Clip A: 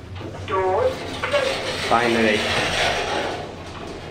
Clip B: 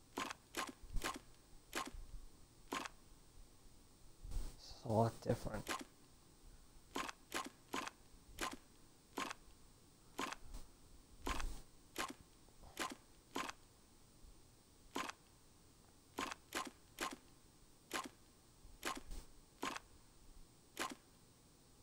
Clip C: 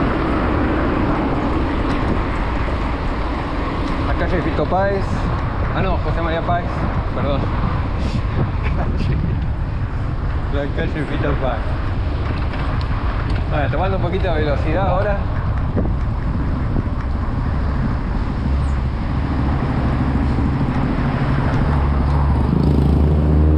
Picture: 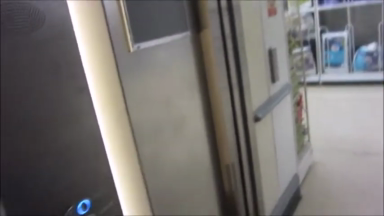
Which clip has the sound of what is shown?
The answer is A